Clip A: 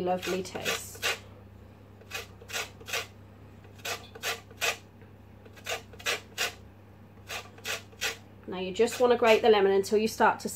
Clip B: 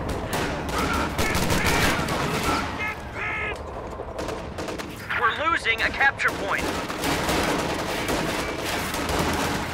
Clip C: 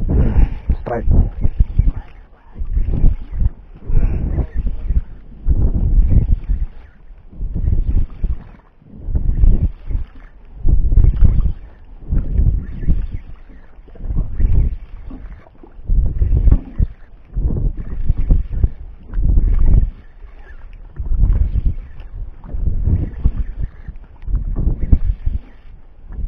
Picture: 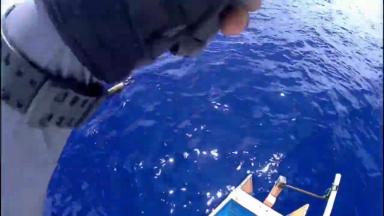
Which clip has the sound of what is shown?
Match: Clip C